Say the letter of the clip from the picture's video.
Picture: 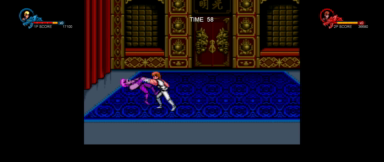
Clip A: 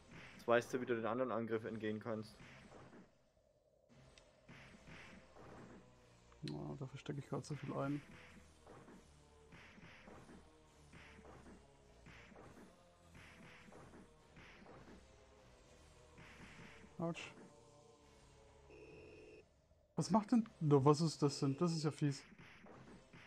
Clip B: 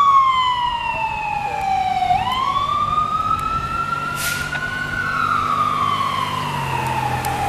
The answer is A